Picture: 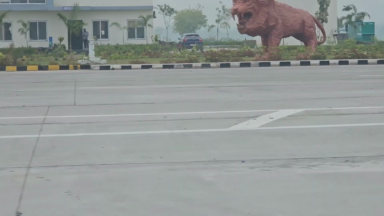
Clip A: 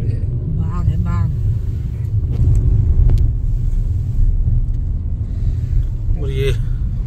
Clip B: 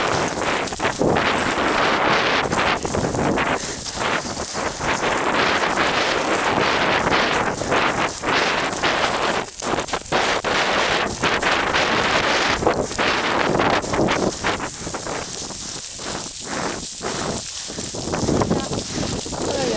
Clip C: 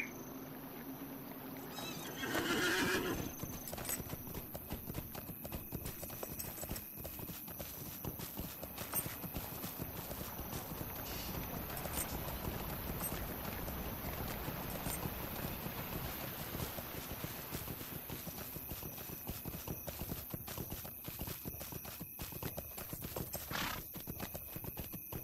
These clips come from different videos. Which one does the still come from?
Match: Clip A